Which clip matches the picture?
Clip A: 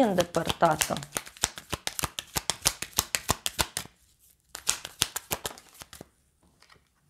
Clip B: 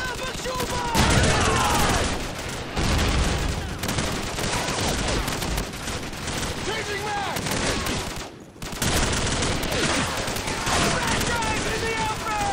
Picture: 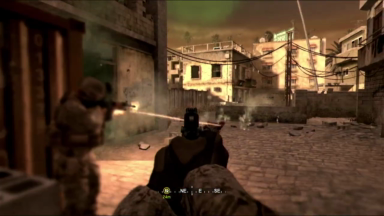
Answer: B